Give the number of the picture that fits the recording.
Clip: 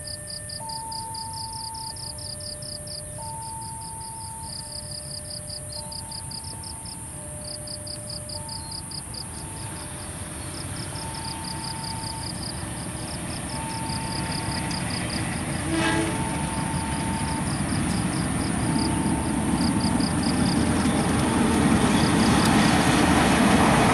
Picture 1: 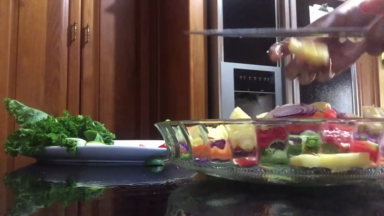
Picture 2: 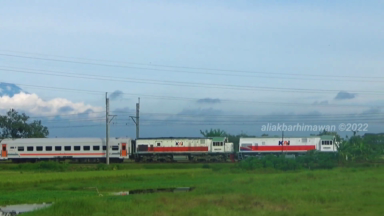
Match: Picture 2